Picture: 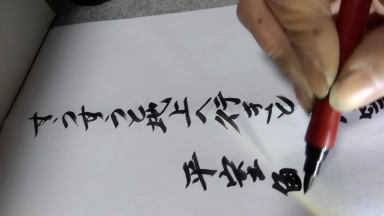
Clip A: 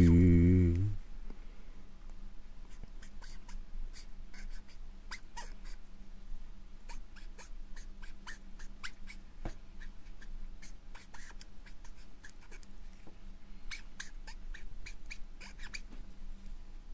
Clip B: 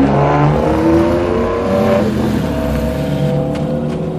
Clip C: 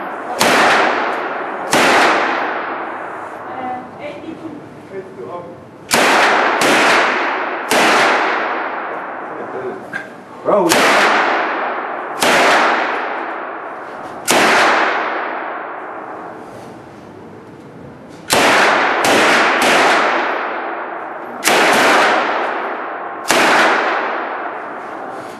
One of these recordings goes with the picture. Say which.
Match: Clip A